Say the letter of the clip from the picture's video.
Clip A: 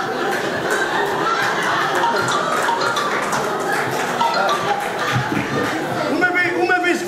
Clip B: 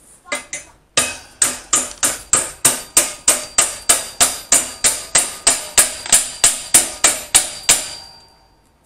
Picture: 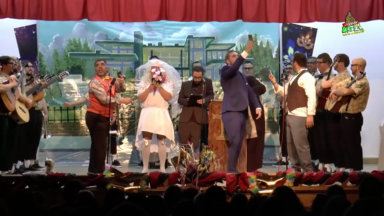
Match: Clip A